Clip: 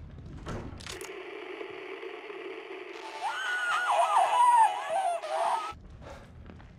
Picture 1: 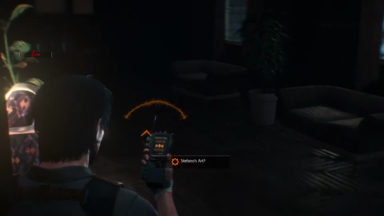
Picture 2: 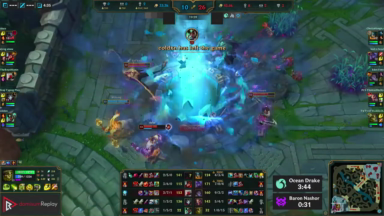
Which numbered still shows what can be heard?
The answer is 1